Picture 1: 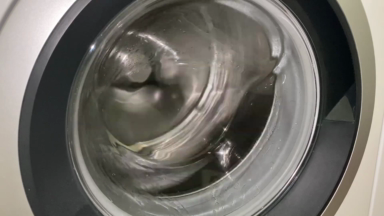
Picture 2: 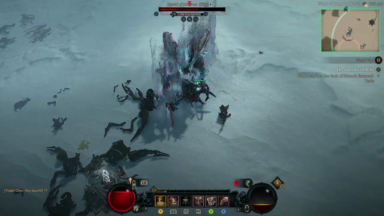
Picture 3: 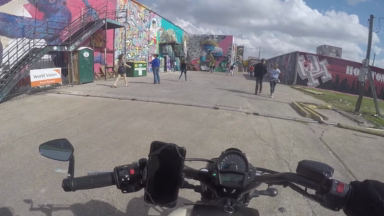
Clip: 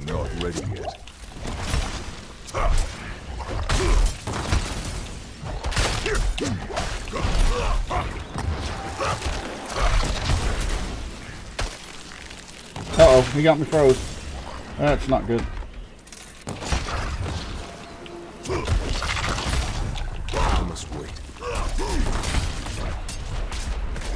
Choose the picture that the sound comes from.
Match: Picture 2